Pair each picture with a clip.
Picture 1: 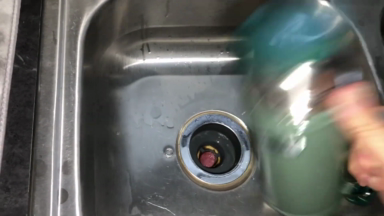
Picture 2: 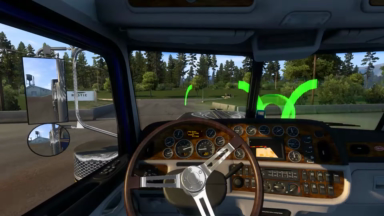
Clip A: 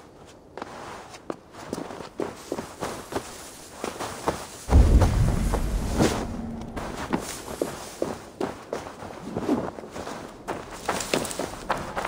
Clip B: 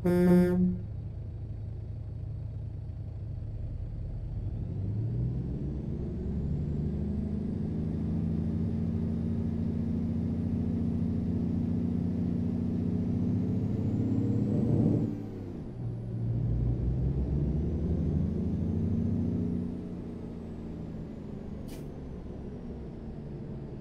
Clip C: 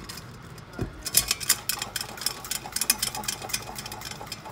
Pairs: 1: C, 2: B